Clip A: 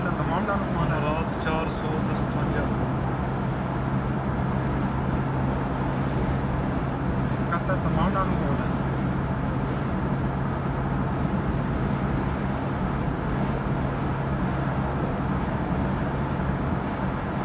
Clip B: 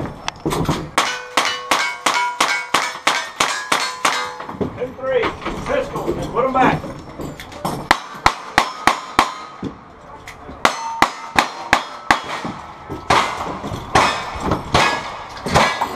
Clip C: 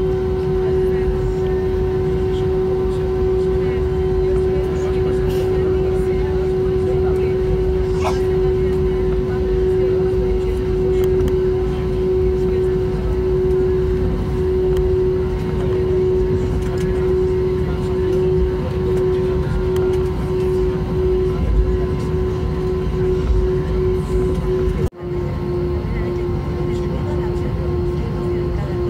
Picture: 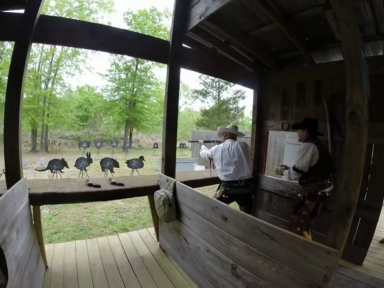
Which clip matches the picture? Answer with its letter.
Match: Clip B